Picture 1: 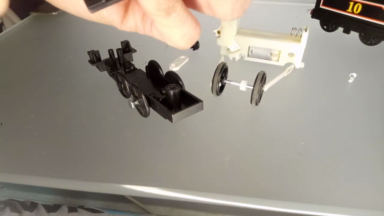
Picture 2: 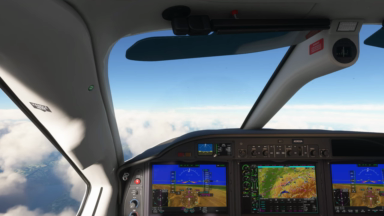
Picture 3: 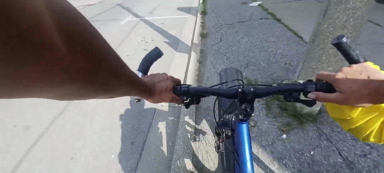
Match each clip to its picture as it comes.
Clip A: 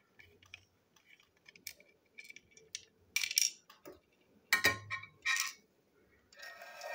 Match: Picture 1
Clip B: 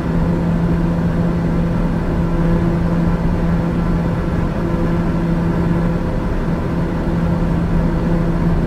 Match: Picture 2